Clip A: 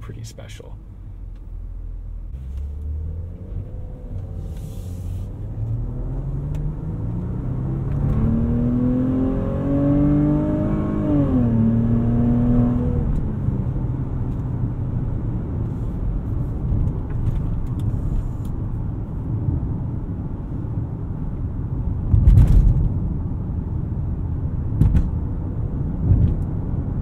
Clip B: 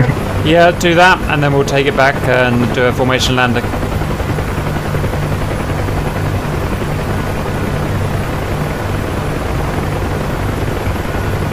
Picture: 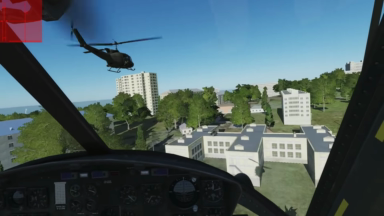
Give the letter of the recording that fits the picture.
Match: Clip B